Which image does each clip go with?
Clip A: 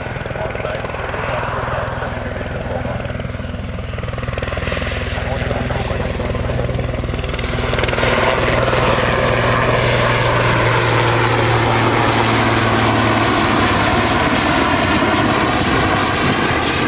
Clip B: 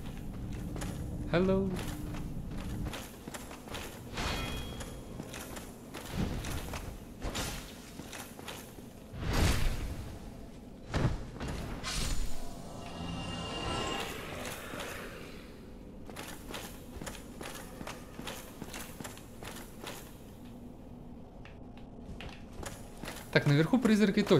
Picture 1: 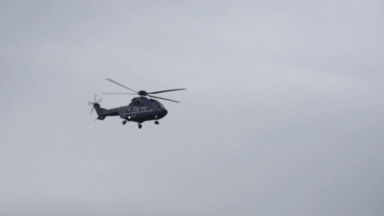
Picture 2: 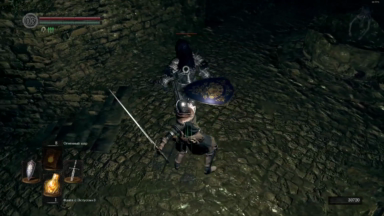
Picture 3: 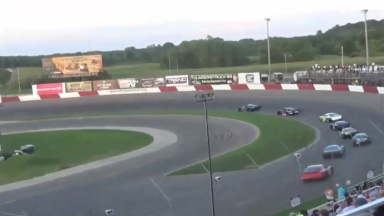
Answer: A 1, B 2